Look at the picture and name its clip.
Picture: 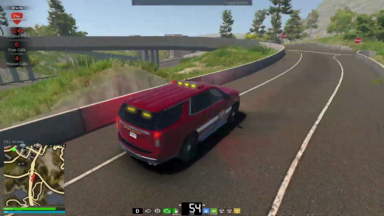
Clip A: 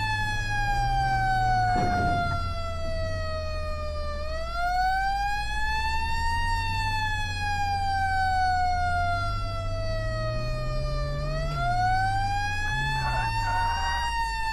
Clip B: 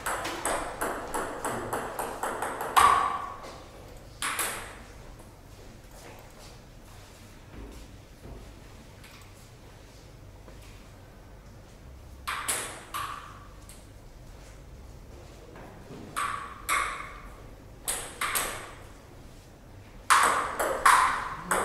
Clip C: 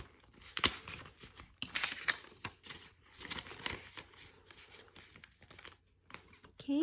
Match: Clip A